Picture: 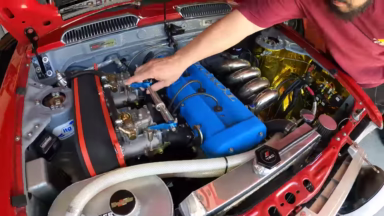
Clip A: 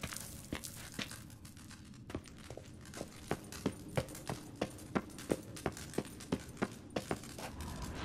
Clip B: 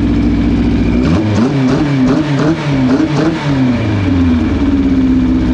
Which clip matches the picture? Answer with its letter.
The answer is B